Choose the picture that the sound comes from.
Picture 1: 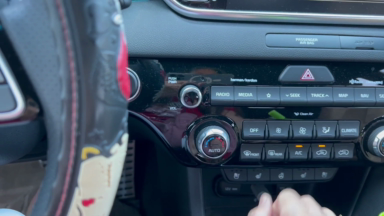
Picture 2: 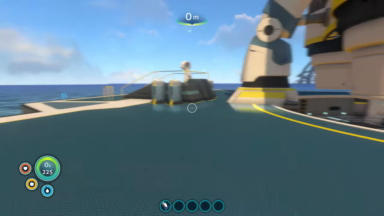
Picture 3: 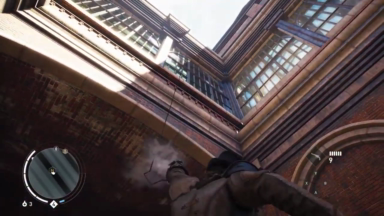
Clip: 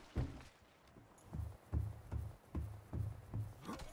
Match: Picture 2